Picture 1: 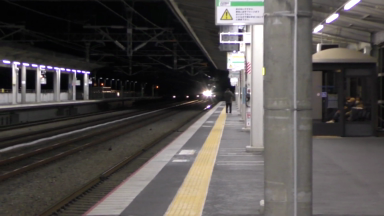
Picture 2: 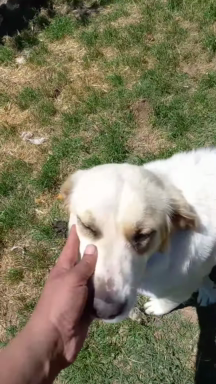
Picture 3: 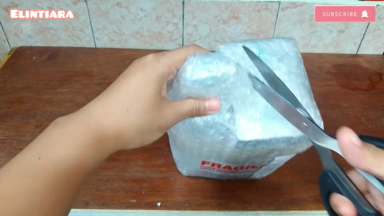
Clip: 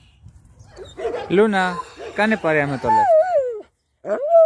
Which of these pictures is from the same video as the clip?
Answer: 2